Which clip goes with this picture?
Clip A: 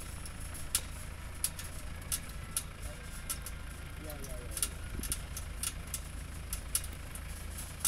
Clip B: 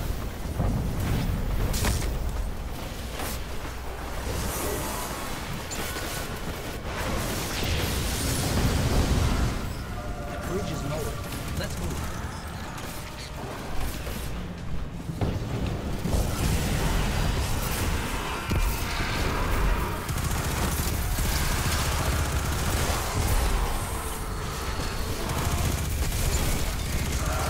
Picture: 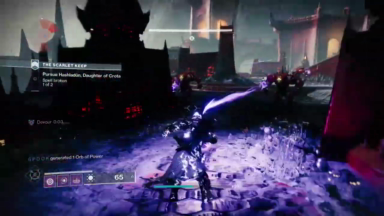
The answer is B